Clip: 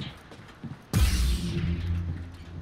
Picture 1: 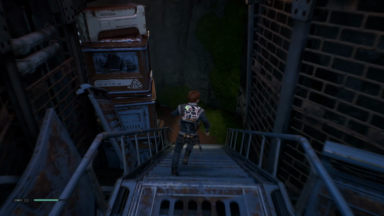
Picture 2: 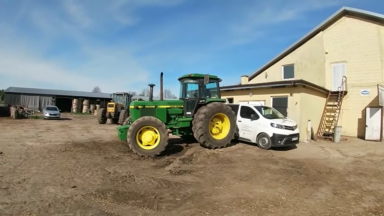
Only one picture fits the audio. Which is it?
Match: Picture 1